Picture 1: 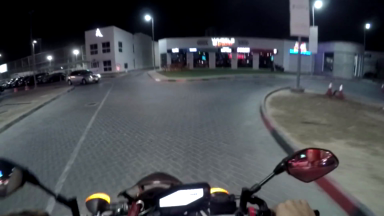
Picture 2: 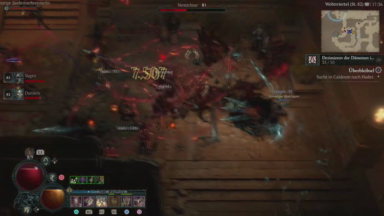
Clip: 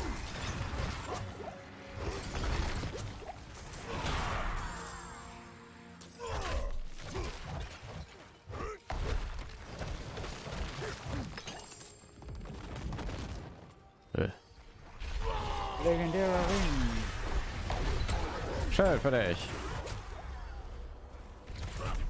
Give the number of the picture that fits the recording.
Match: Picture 2